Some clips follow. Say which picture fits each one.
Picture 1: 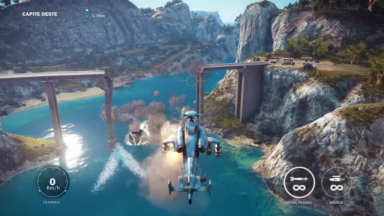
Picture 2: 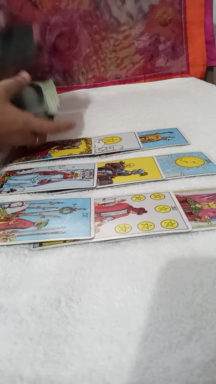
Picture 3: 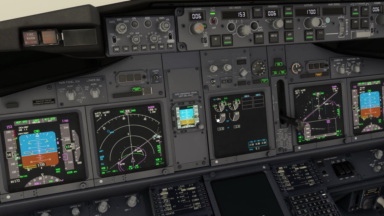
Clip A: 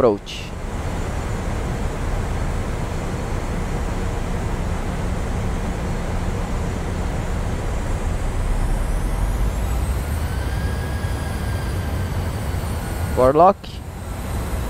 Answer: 3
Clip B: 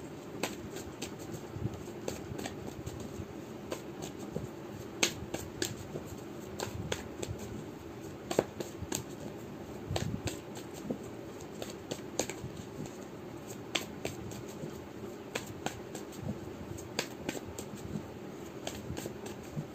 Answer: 2